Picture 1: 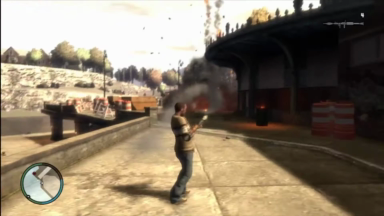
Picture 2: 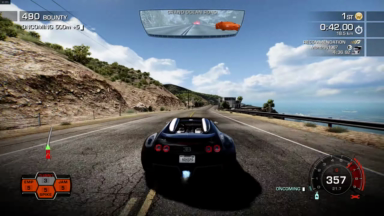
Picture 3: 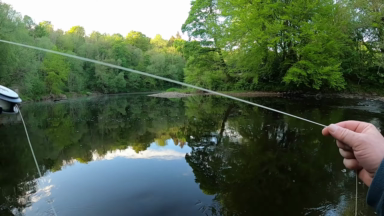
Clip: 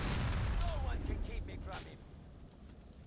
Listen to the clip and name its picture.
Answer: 1